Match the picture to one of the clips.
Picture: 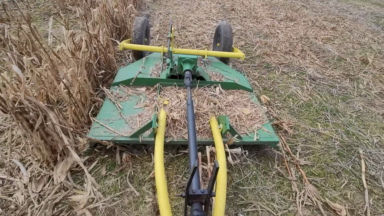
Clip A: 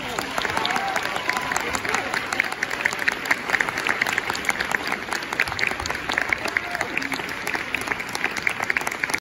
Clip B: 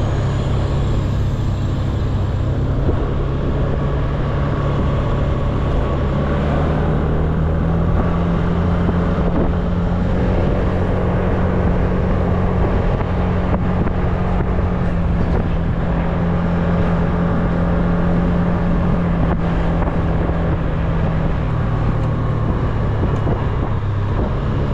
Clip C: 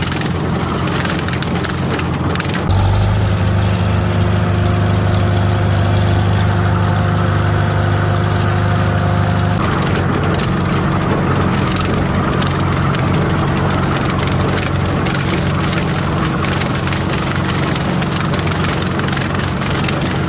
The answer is C